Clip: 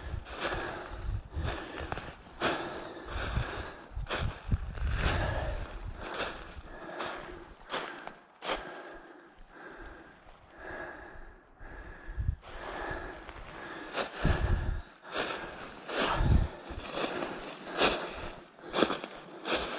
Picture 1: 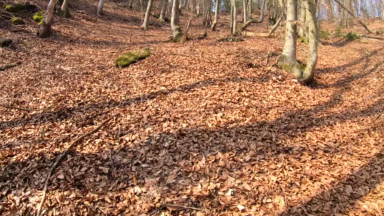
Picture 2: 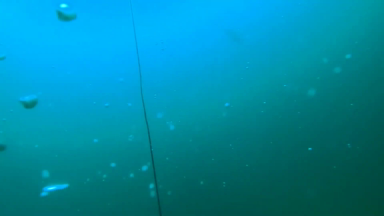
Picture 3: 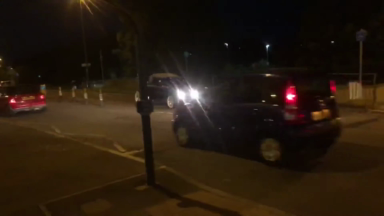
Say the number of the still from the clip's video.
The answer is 1